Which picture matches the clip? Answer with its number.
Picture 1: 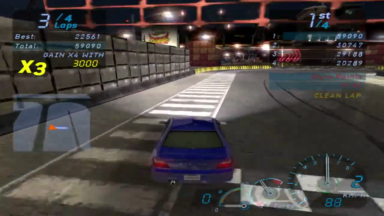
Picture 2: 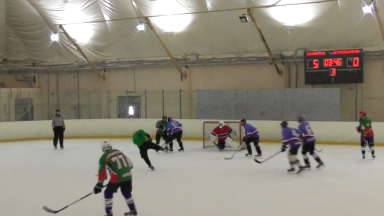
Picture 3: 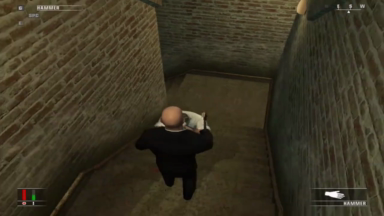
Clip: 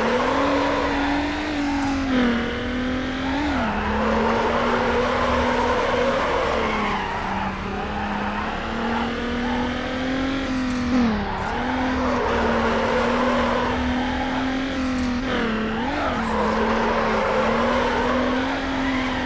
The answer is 1